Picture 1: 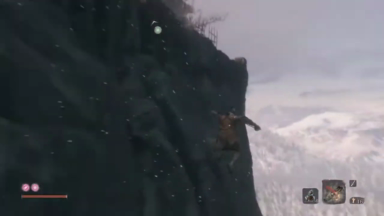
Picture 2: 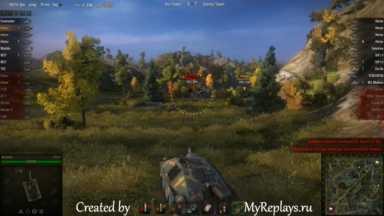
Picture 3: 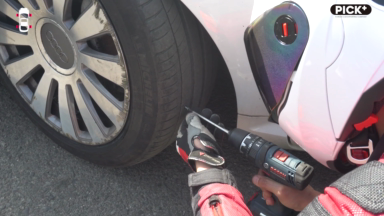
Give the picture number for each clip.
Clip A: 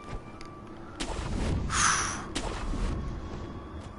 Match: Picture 1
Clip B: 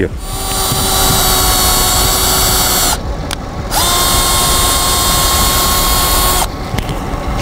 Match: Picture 3